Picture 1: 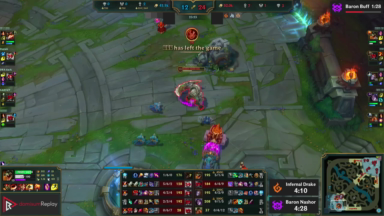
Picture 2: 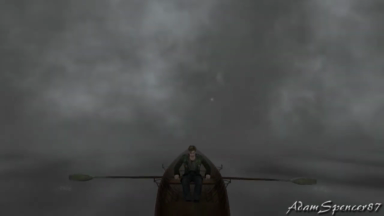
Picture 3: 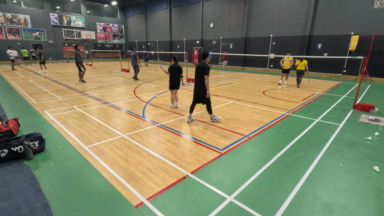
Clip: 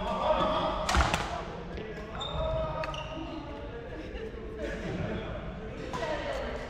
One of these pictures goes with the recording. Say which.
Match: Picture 3